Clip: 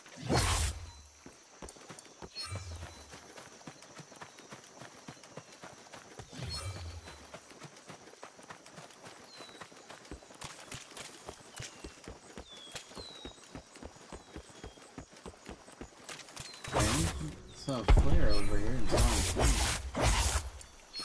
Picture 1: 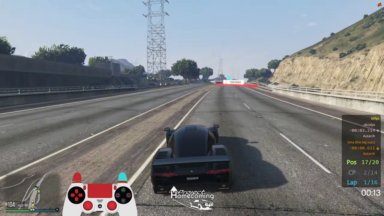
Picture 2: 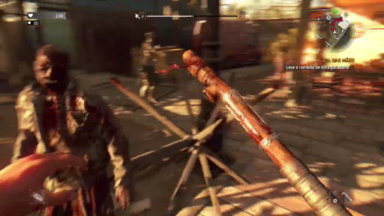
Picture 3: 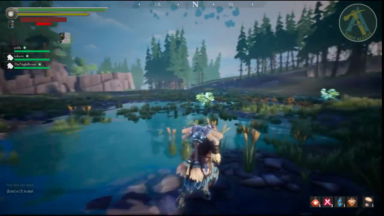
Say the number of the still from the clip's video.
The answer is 3